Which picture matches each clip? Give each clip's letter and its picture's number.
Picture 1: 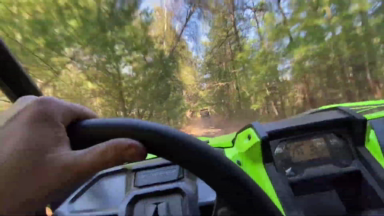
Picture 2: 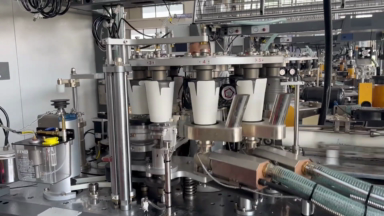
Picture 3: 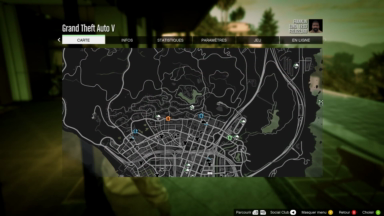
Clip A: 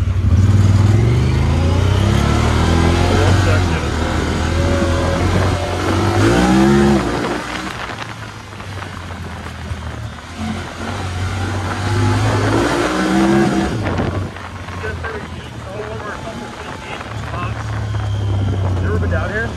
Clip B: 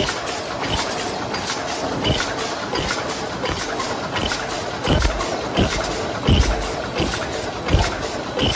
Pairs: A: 1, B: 2